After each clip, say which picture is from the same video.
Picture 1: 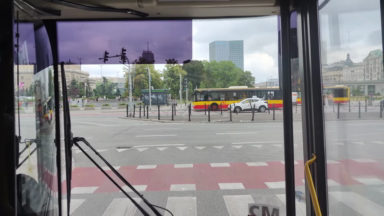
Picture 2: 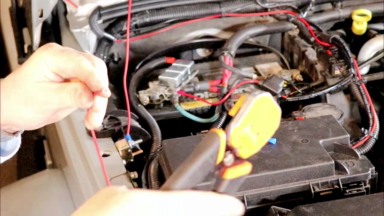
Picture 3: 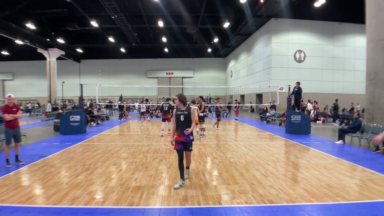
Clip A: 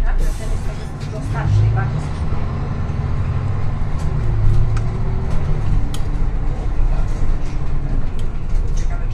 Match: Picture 1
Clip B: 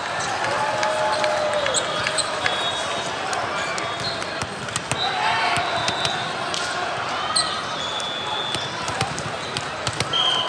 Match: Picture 3